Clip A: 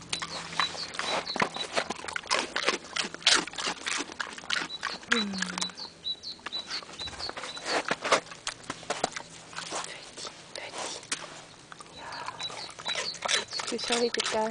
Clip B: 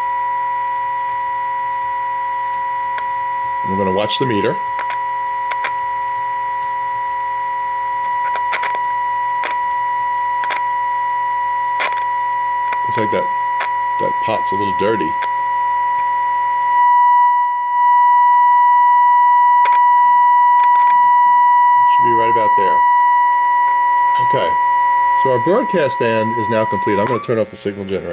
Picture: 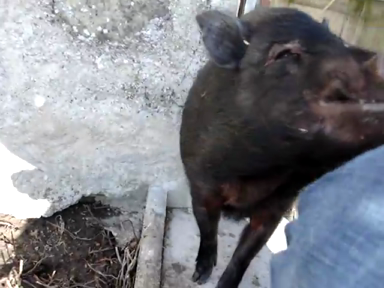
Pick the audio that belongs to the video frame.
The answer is A